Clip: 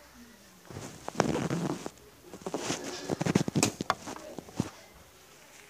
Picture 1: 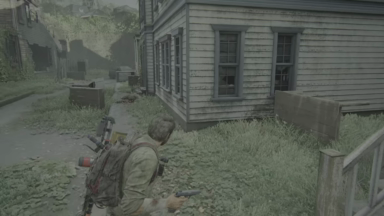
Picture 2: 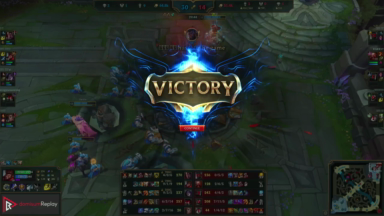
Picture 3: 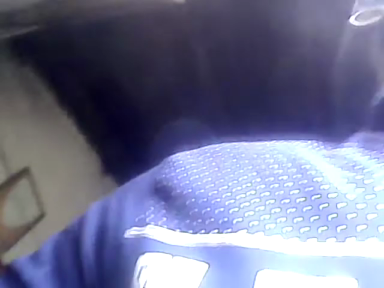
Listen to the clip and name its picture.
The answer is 3